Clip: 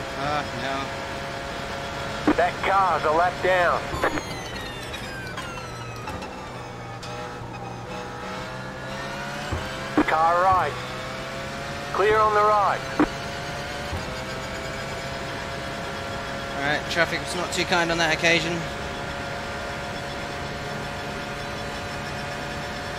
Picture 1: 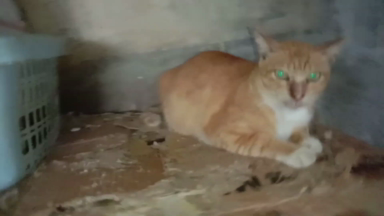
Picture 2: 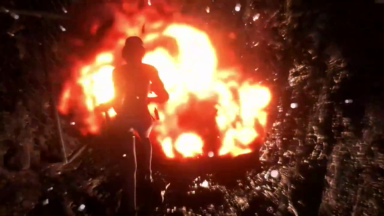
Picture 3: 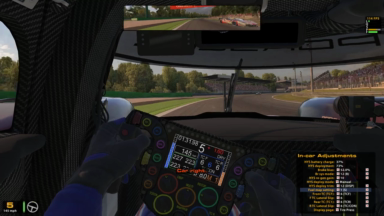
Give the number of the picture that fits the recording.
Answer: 3